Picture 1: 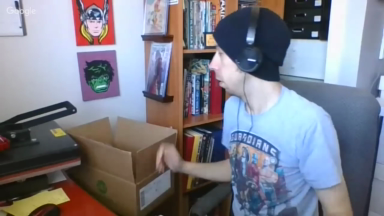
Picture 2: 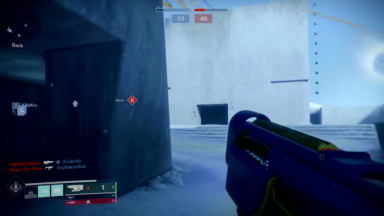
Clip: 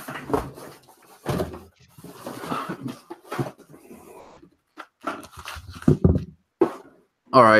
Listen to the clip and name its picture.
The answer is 1